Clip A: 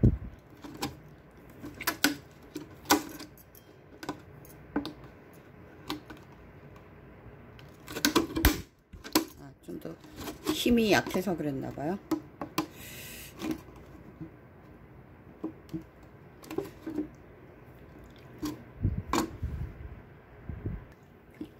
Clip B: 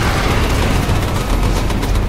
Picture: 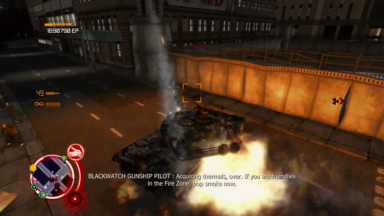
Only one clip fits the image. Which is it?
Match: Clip B